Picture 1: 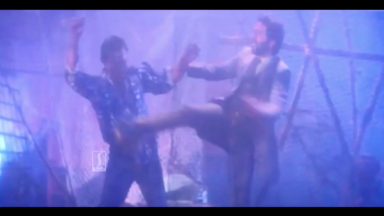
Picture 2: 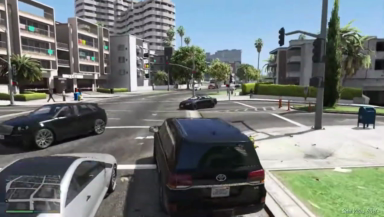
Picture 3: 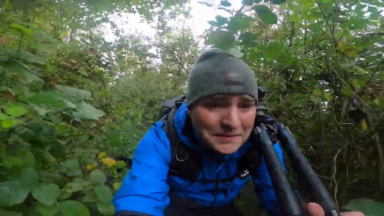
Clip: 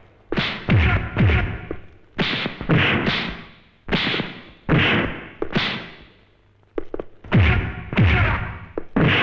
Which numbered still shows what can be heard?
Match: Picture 1